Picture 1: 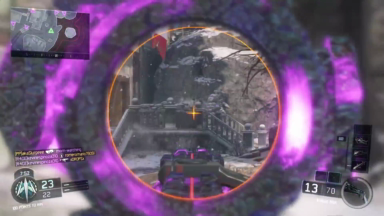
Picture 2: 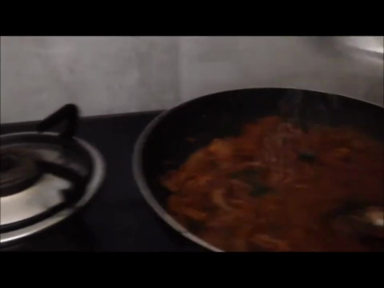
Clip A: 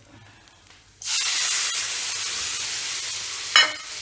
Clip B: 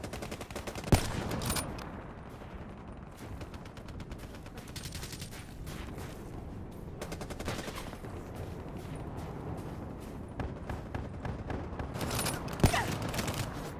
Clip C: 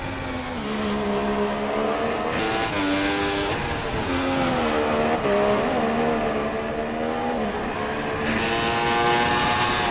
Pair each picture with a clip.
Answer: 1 B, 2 A